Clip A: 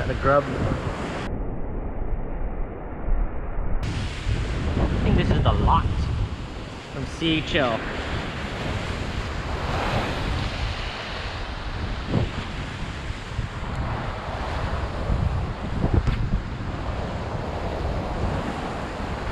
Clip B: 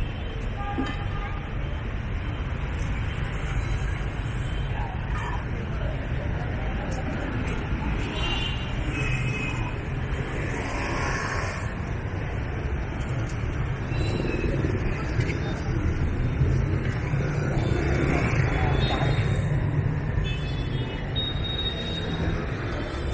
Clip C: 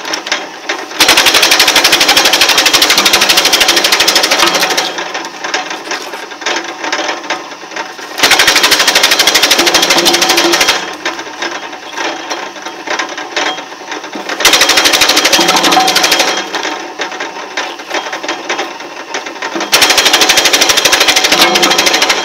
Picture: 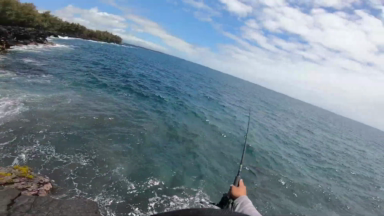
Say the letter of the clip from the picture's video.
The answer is A